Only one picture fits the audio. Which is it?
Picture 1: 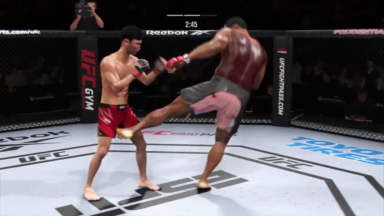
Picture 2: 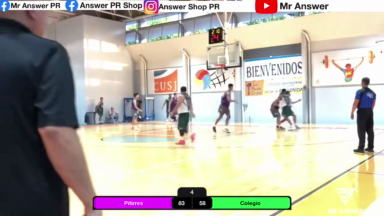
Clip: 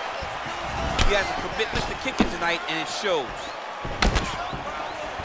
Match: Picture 1